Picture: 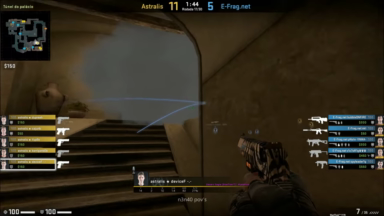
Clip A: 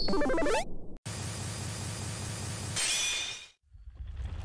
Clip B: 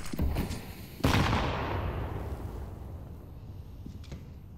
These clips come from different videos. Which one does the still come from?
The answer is B